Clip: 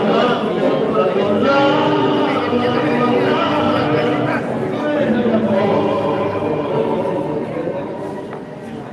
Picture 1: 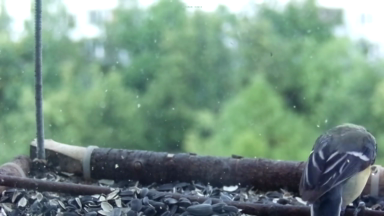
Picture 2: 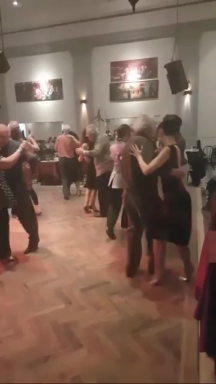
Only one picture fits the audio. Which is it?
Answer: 2